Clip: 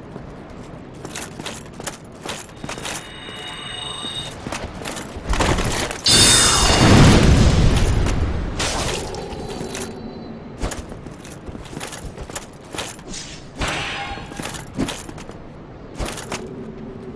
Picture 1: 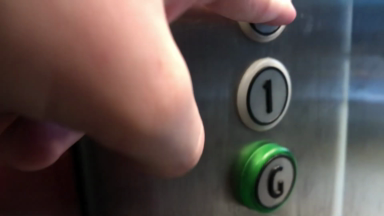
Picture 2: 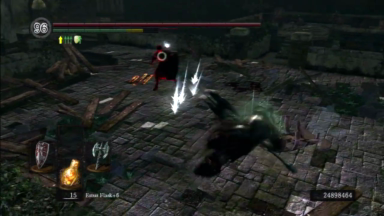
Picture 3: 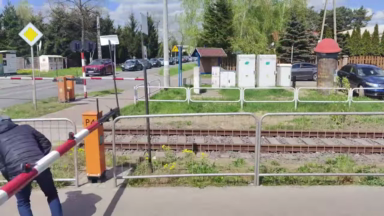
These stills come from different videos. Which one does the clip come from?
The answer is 2